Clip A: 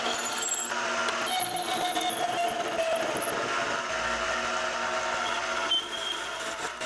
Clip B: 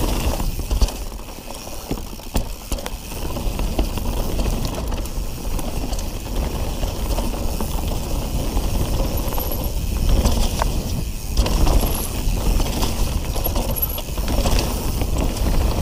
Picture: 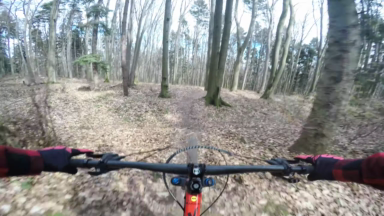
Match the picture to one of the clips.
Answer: B